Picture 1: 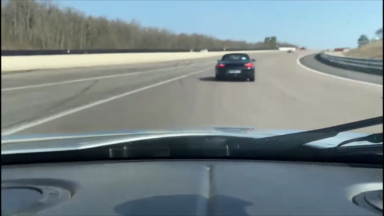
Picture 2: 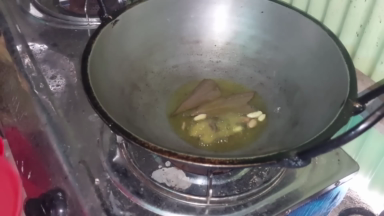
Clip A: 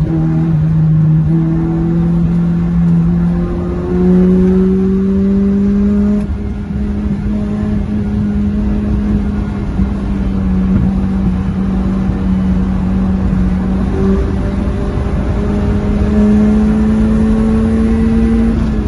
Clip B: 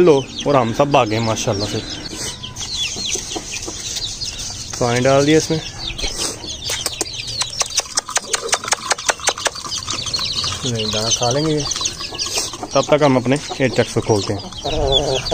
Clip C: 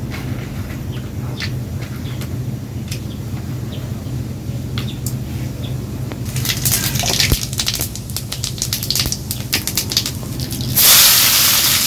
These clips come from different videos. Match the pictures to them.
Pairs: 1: A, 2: C